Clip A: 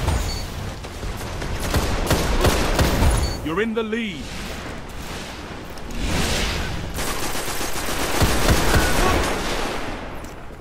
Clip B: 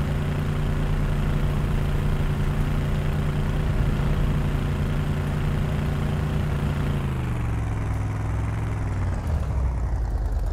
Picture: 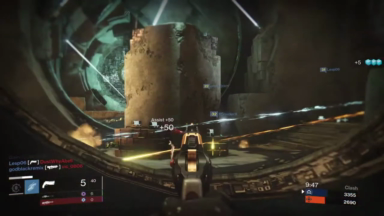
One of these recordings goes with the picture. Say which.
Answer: A